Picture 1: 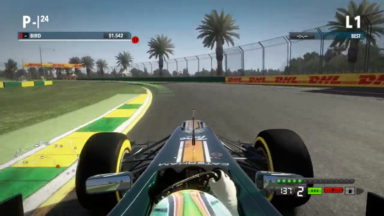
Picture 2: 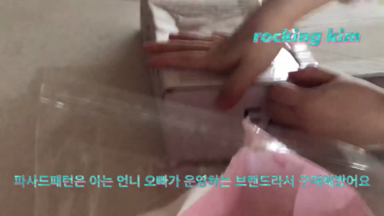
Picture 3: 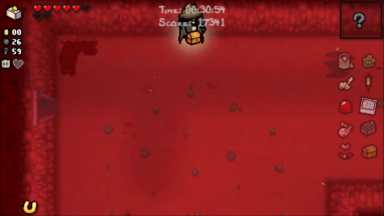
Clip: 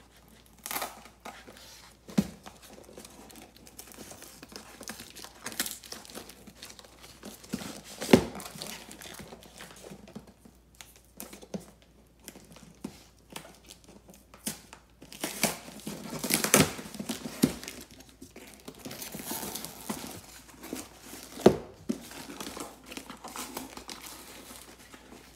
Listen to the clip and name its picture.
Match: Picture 2